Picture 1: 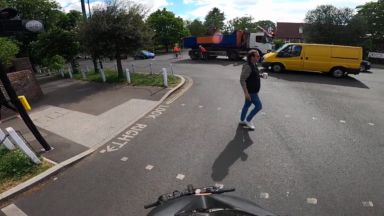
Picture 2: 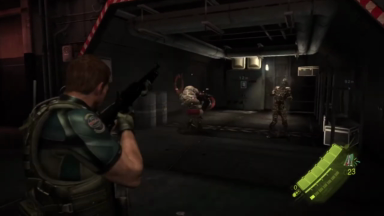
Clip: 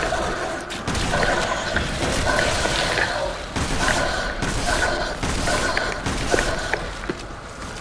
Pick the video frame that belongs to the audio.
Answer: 2